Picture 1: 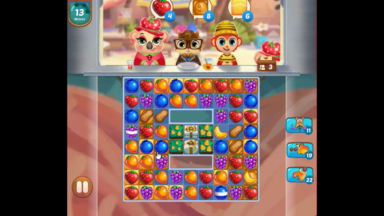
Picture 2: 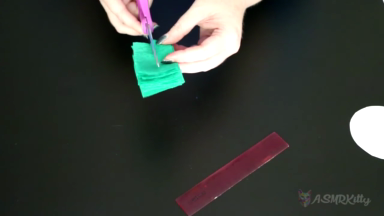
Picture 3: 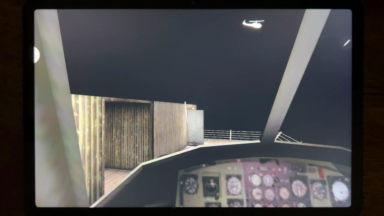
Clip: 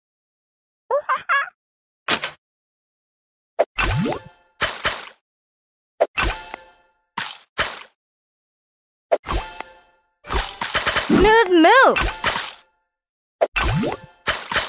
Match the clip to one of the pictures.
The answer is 1